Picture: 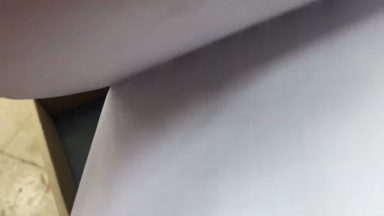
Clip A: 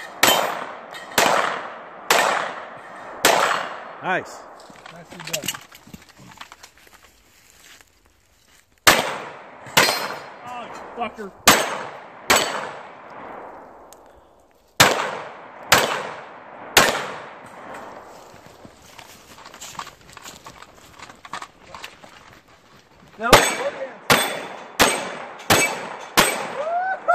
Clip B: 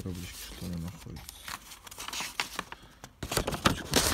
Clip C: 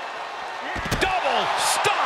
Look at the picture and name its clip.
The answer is B